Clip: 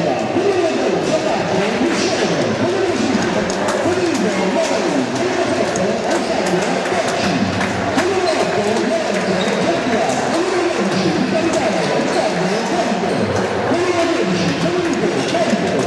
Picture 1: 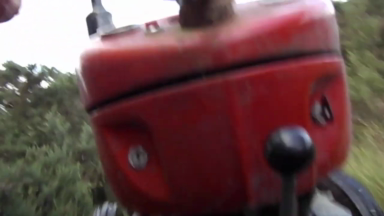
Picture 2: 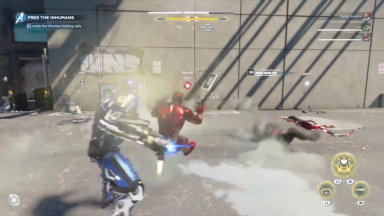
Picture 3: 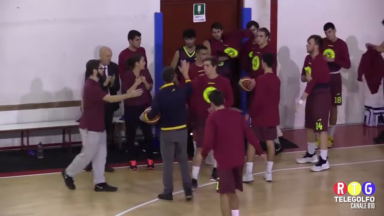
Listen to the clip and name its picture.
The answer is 3